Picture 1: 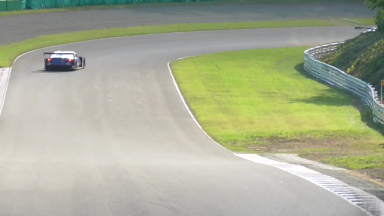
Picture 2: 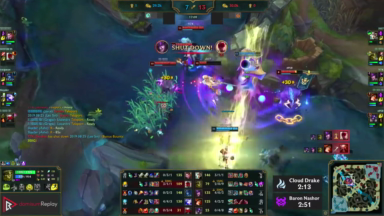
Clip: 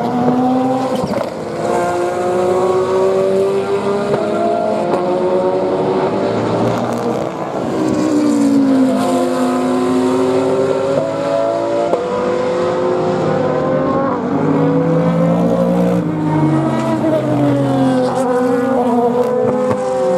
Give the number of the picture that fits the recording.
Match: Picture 1